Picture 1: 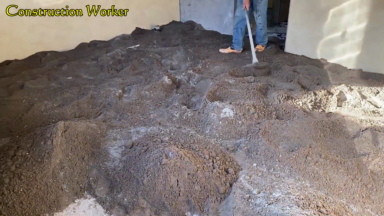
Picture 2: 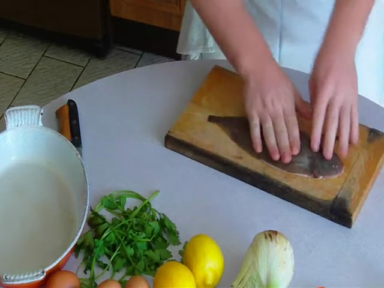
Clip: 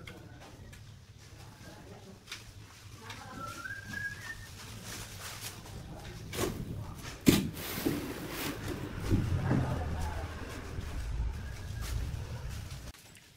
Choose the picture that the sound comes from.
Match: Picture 1